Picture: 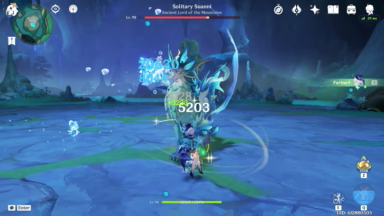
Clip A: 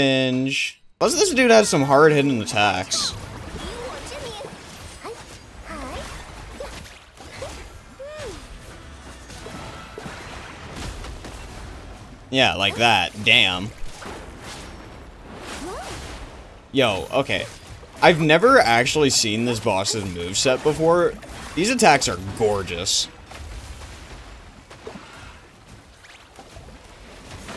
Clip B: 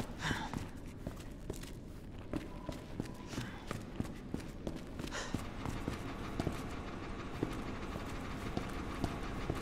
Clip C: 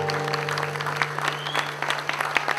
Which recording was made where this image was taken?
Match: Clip A